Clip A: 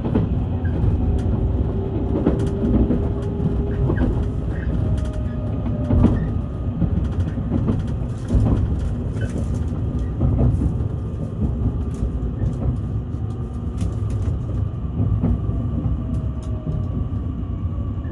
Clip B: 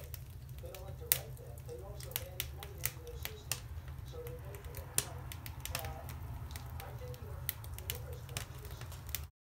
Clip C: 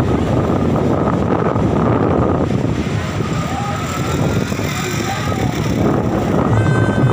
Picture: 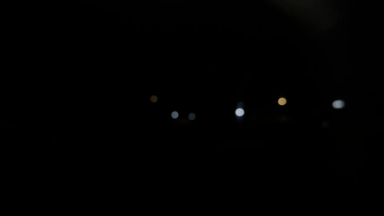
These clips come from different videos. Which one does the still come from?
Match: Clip A